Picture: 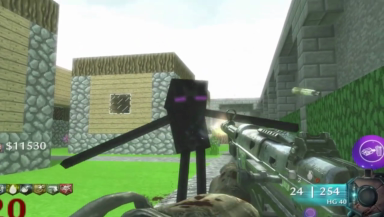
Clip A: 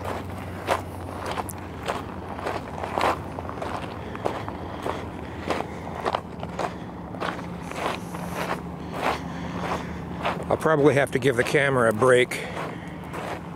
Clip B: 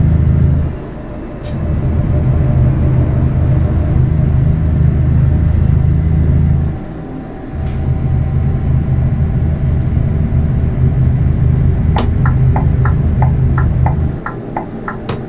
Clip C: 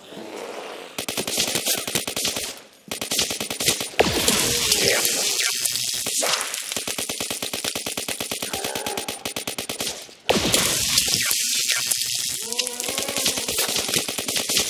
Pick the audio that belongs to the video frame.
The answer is C